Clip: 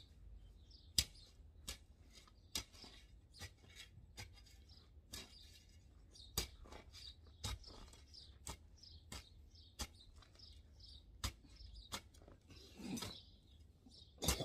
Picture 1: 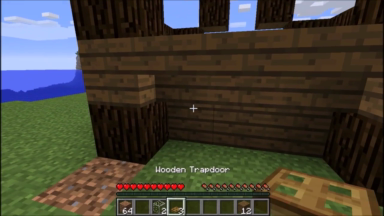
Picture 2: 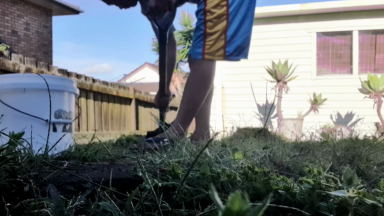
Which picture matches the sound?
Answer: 2